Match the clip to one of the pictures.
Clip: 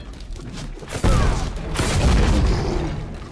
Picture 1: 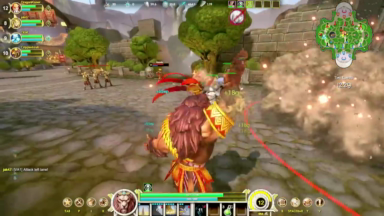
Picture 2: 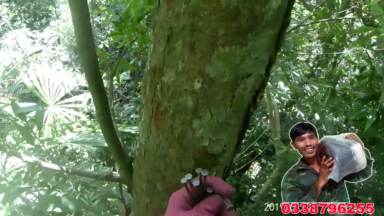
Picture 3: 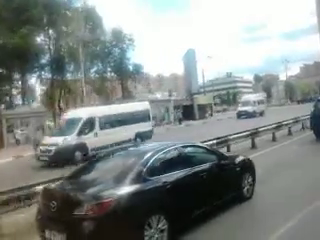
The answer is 1